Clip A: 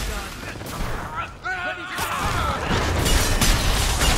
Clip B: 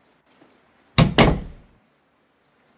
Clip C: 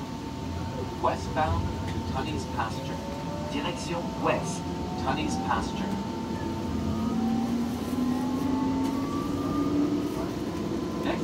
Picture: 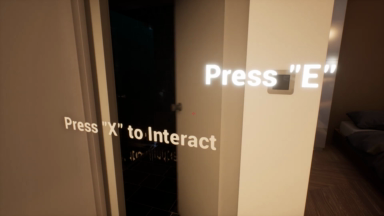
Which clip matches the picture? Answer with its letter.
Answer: B